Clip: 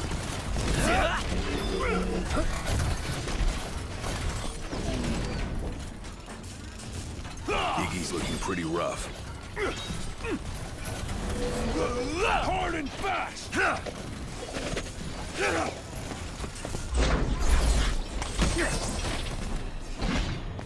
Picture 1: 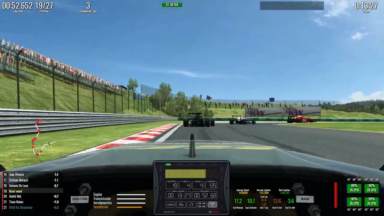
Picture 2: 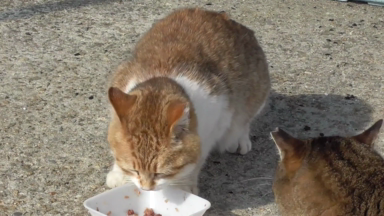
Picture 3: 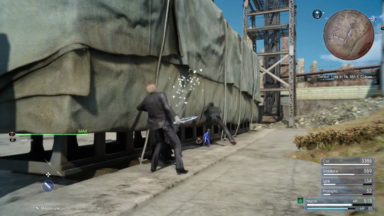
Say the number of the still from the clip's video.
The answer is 3